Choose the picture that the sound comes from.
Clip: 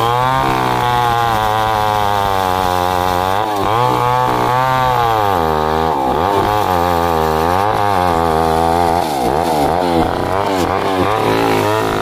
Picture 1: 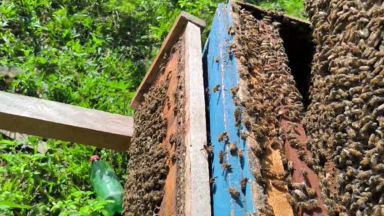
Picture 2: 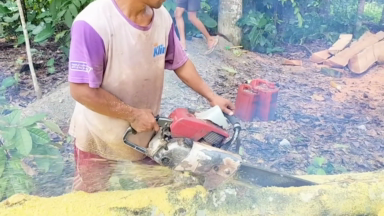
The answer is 2